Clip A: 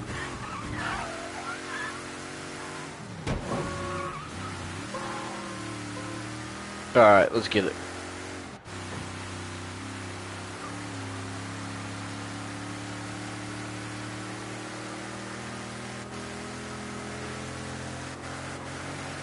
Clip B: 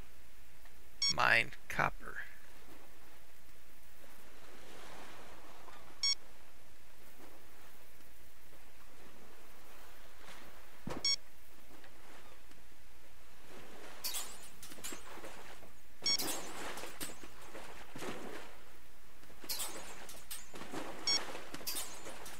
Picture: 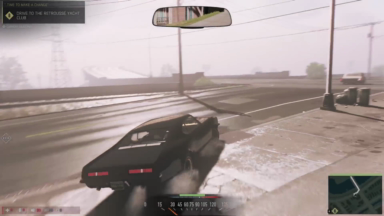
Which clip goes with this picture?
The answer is A